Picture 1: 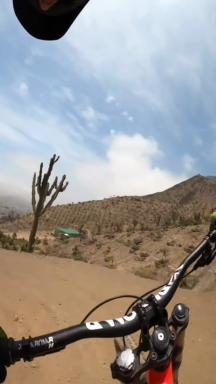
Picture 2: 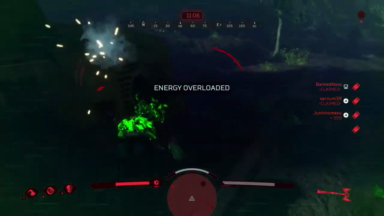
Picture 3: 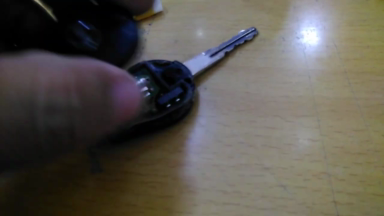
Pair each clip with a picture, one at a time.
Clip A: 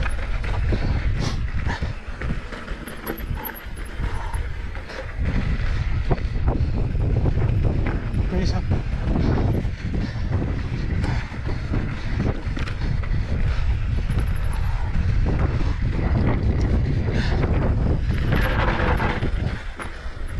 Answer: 1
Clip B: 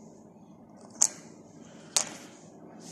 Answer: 3